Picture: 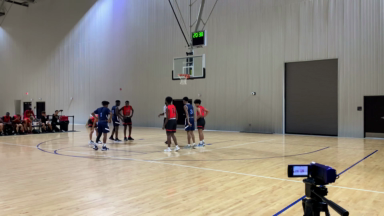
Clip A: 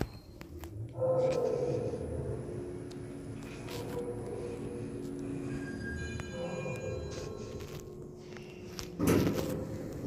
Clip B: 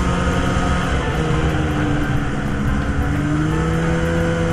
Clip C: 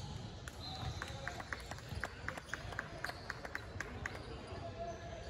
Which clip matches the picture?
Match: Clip C